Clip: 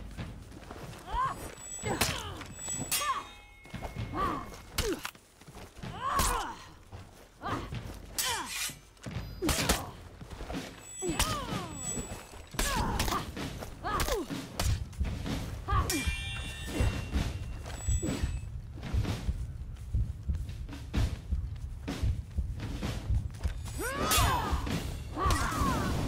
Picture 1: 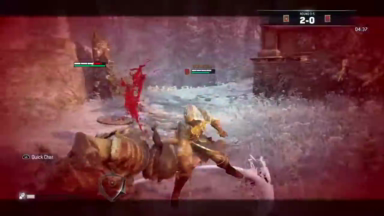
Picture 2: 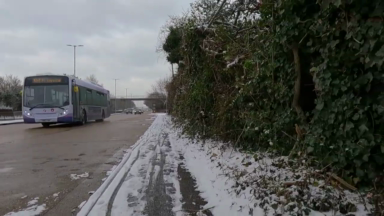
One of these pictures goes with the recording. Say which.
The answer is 1